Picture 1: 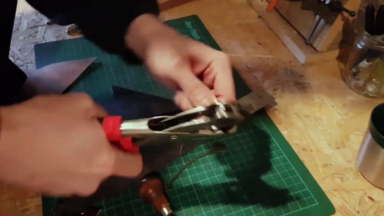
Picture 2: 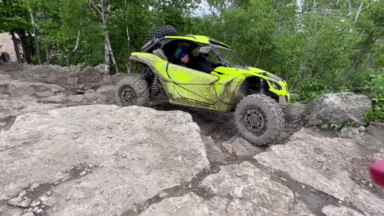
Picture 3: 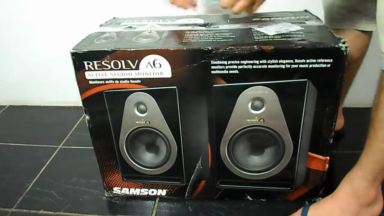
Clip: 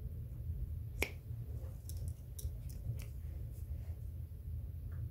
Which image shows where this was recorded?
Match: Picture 1